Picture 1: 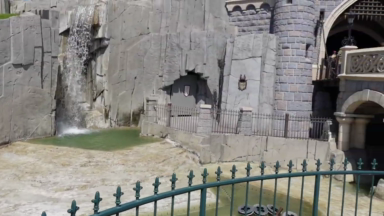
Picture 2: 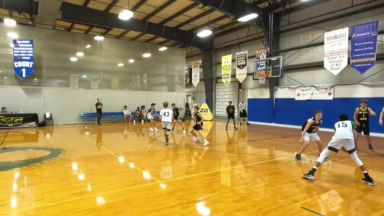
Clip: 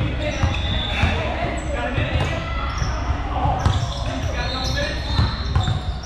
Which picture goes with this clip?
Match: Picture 2